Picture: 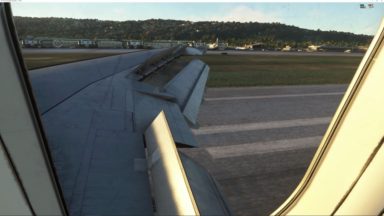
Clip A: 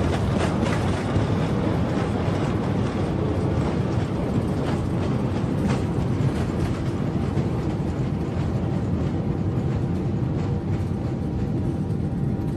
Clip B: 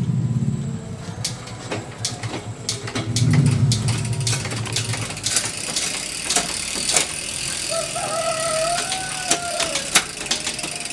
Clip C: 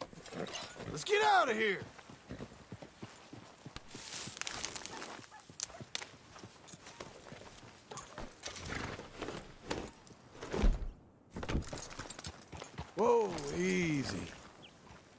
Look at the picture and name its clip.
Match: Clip A